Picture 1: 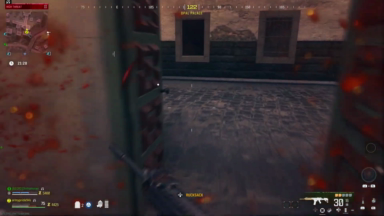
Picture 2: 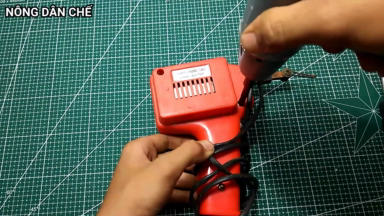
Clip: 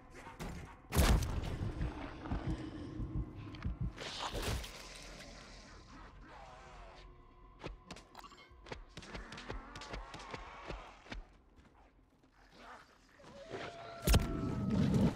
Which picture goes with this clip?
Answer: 1